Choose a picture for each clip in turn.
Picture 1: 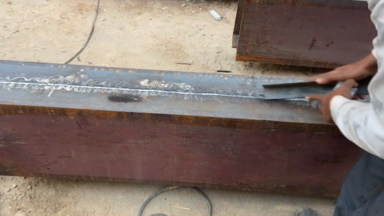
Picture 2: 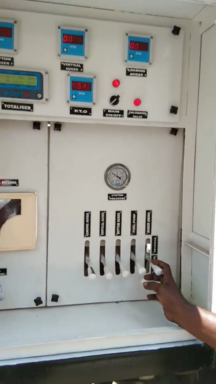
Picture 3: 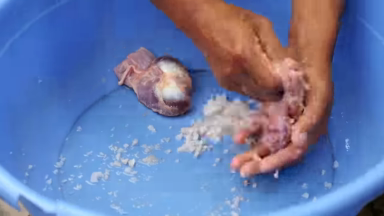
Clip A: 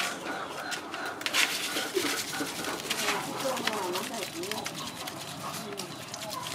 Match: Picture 3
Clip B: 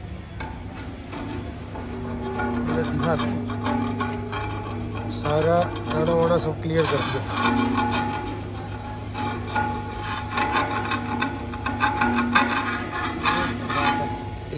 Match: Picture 1